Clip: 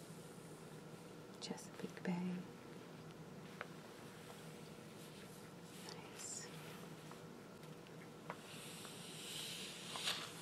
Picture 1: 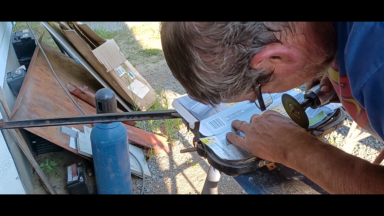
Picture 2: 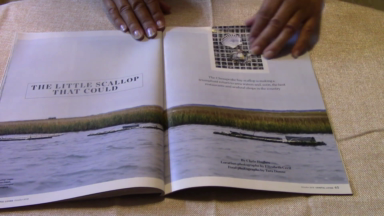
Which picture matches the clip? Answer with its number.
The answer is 2